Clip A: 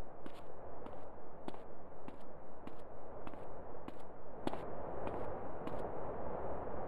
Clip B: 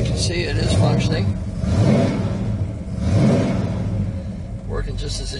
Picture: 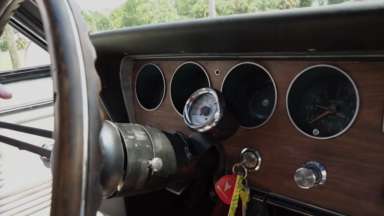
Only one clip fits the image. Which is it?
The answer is B